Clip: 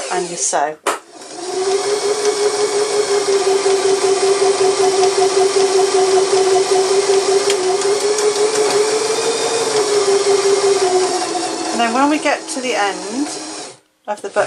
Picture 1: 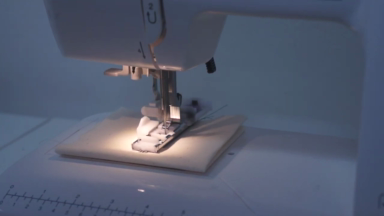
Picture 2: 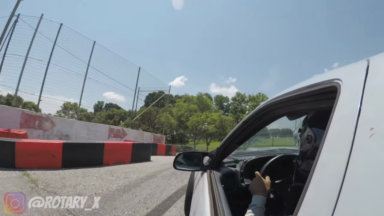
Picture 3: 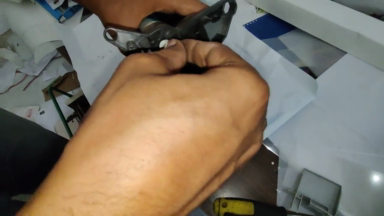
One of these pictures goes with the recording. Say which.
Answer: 1